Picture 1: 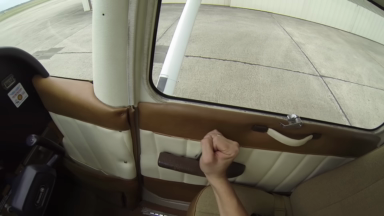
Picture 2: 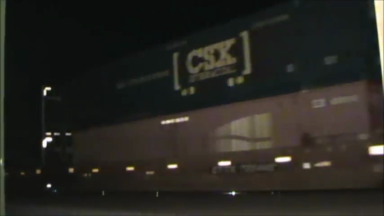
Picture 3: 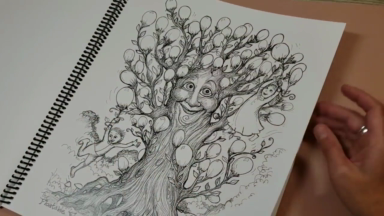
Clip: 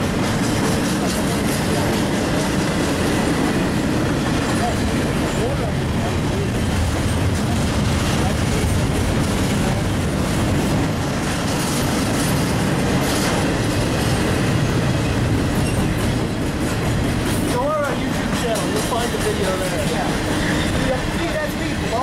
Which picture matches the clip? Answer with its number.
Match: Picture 2